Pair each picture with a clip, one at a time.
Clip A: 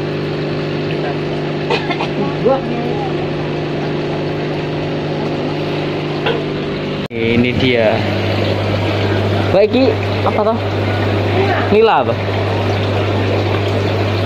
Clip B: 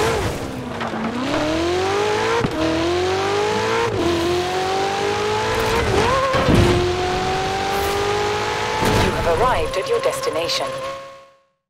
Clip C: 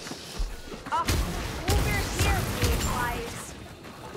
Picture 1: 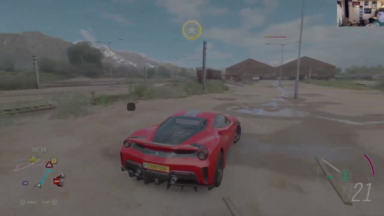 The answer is B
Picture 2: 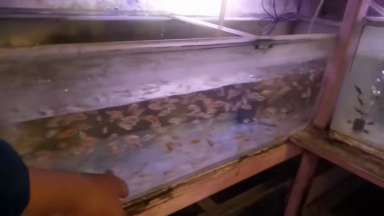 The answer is A